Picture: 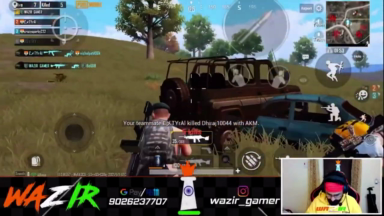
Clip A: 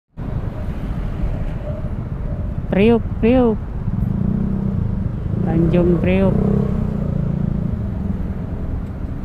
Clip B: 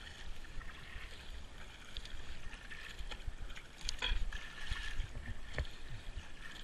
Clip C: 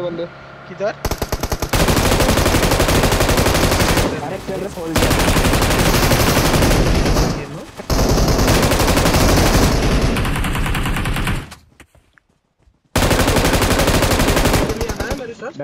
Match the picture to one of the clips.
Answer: C